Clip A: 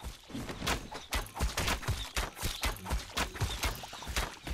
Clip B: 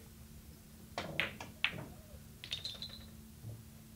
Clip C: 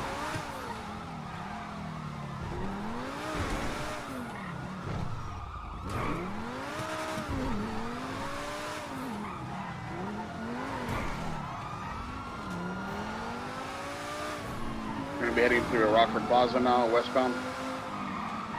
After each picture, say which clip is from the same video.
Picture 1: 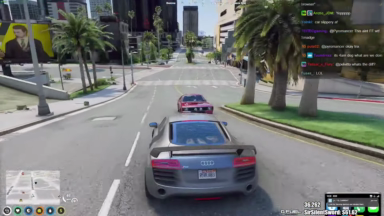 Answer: C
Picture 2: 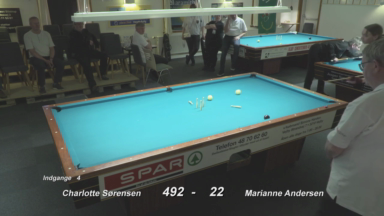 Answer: B